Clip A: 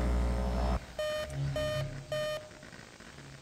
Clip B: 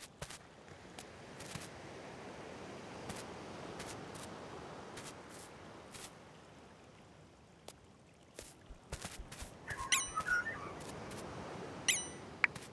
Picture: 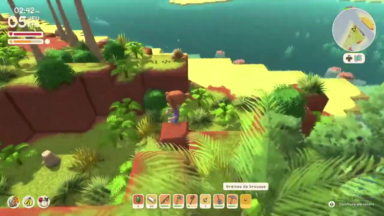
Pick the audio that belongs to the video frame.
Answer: B